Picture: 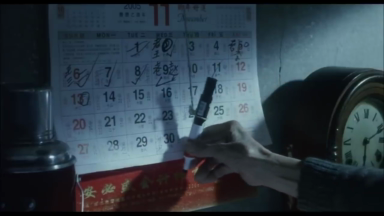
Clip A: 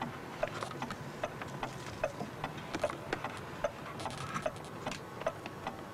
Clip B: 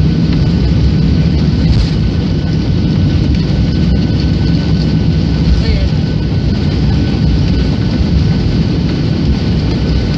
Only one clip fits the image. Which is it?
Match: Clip A